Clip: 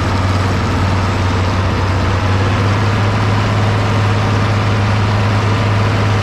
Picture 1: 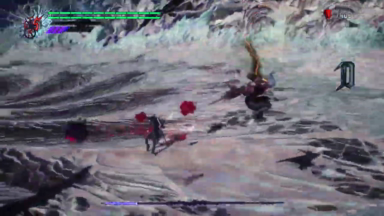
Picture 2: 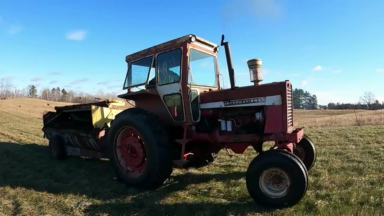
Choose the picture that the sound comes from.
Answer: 2